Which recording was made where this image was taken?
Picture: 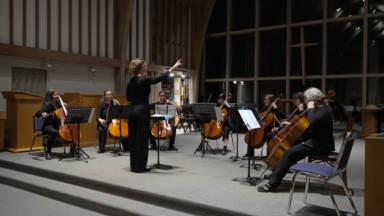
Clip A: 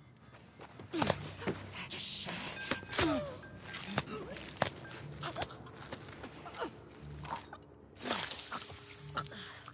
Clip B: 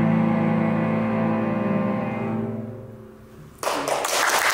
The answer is B